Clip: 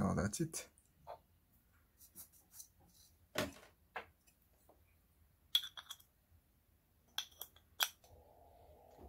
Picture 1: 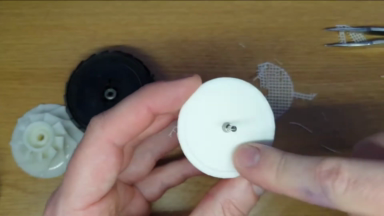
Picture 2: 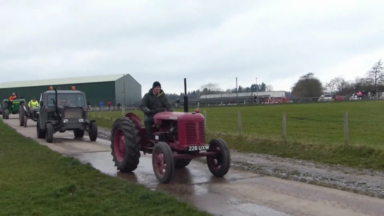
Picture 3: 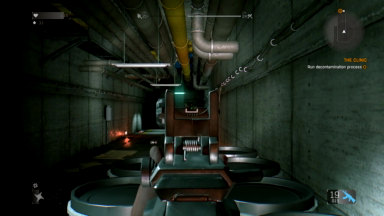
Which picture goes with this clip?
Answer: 1